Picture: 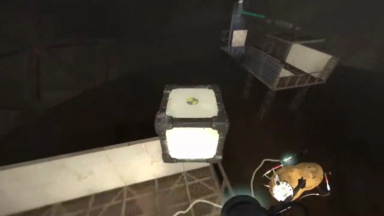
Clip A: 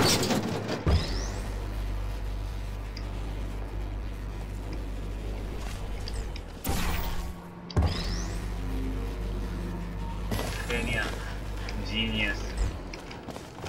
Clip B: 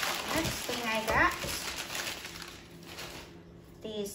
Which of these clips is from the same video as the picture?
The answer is A